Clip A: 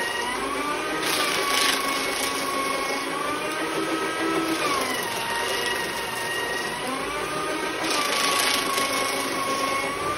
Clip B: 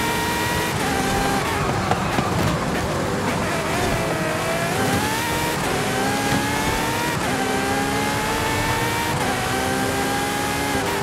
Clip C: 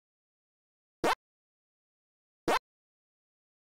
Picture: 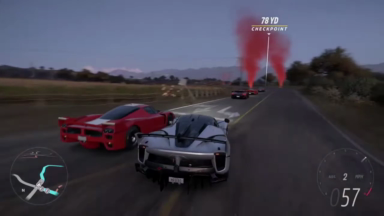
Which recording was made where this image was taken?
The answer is B